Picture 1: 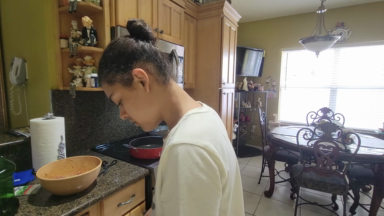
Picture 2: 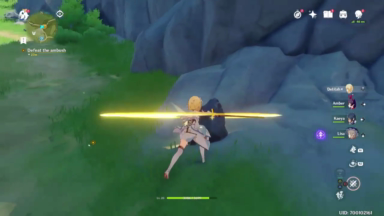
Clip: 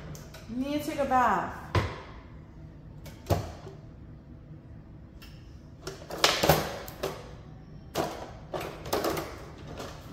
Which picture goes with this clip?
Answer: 1